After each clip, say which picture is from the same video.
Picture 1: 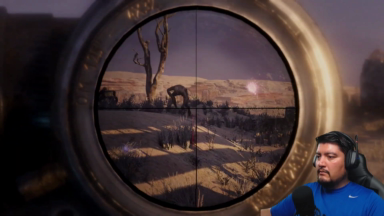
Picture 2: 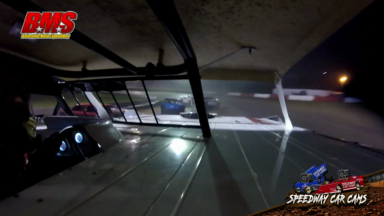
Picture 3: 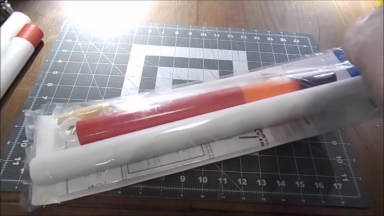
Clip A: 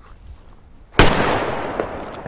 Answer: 1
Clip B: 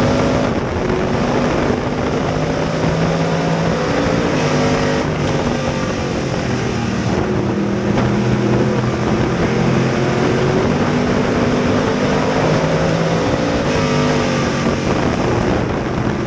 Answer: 2